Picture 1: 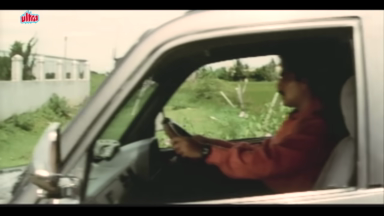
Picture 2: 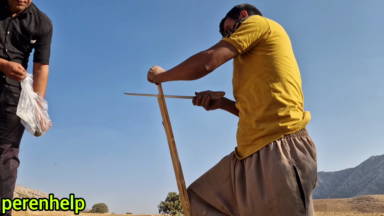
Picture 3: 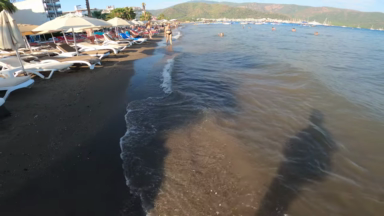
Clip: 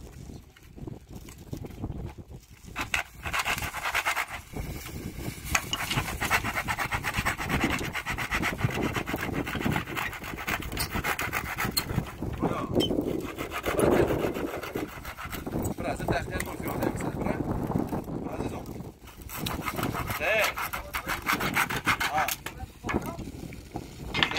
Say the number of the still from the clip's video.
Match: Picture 2